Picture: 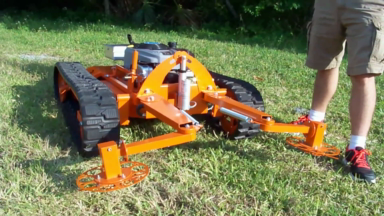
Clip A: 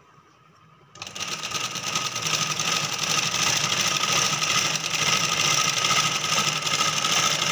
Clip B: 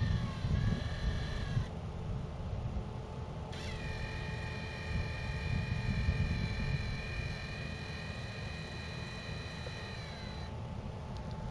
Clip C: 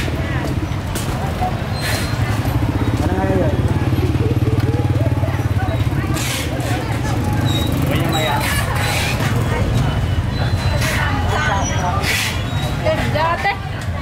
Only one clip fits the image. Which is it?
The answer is B